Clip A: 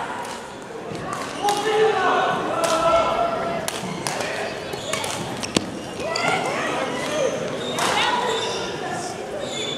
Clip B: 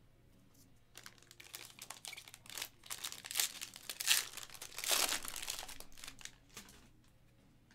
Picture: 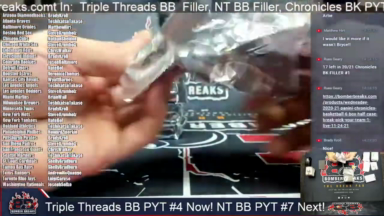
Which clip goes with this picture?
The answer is B